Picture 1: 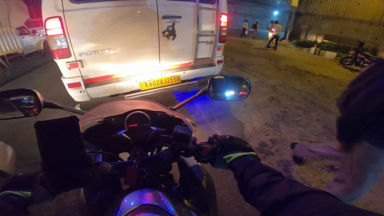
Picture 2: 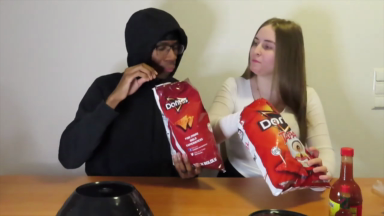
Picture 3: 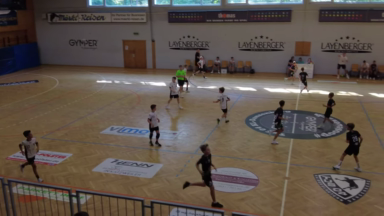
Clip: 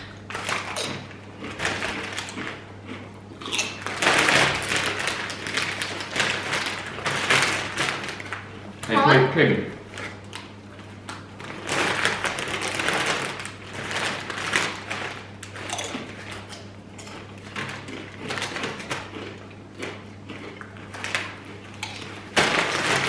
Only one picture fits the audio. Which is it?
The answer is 2